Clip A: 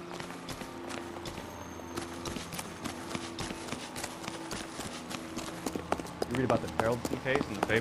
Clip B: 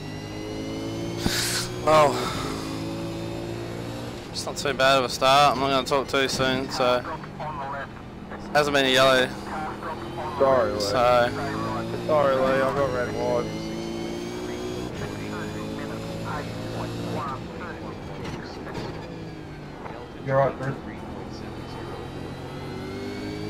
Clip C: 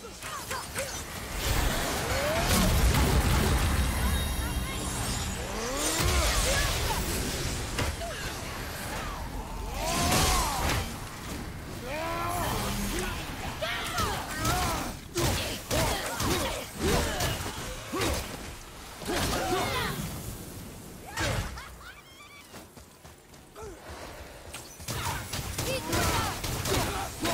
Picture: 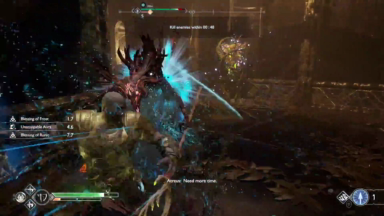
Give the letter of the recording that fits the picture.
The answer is C